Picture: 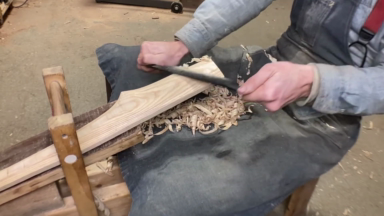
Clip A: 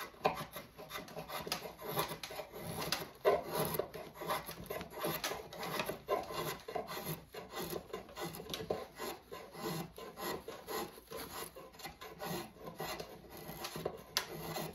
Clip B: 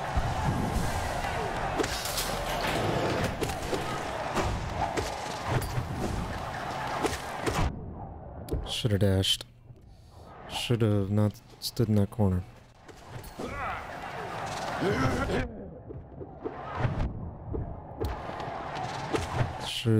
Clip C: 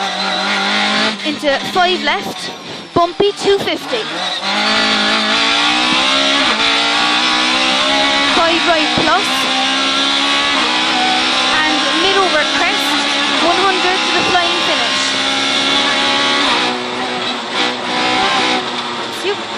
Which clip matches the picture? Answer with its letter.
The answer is A